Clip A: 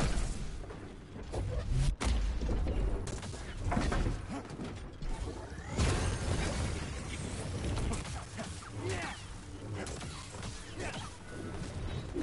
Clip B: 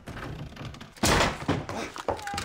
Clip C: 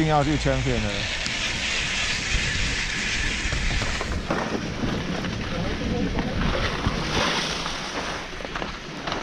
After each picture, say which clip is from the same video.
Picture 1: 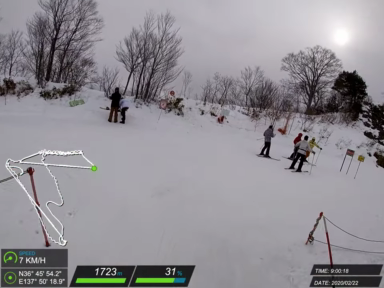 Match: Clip C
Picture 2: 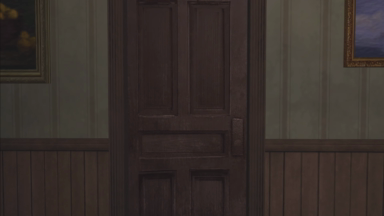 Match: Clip B